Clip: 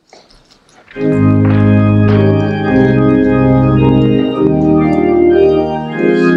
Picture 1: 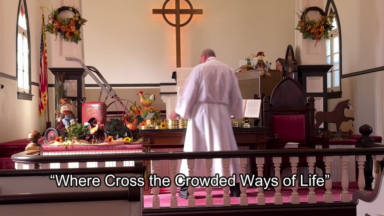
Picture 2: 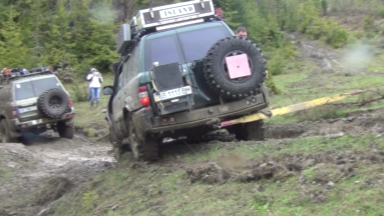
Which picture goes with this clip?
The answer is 1